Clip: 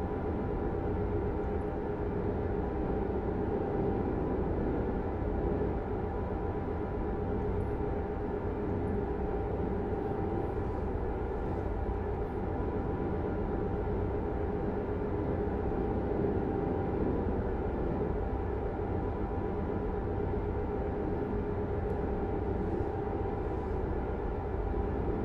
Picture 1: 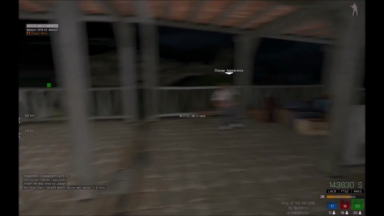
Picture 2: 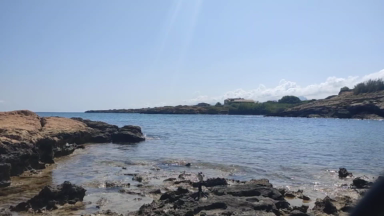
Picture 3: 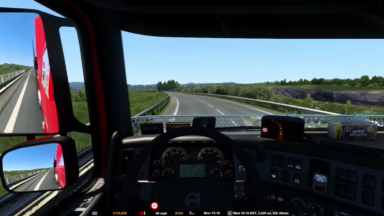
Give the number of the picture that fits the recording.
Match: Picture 3